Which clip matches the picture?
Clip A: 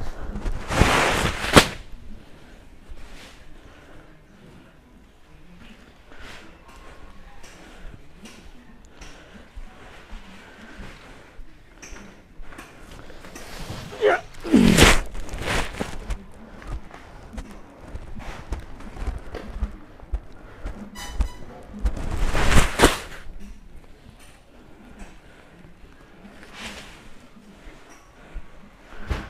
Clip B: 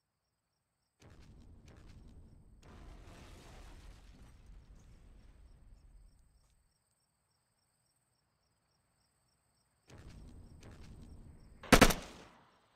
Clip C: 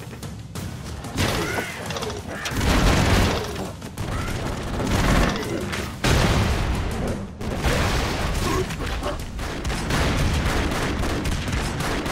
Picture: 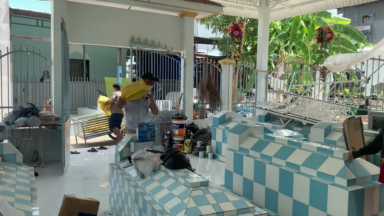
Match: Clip A